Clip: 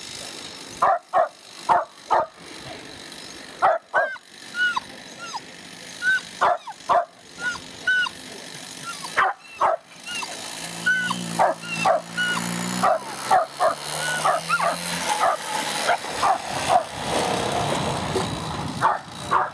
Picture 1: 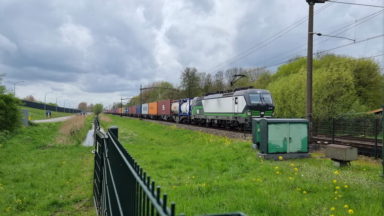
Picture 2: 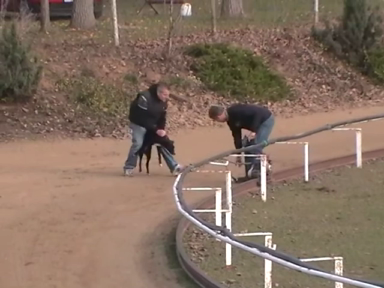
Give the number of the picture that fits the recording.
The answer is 2